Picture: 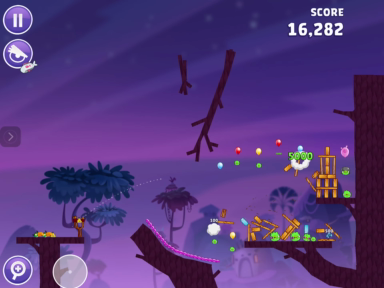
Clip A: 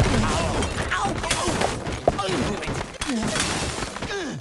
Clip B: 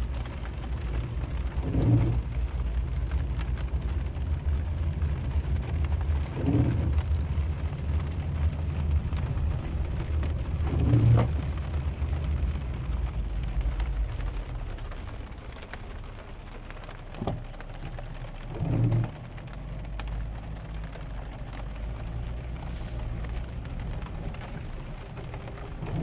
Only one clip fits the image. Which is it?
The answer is A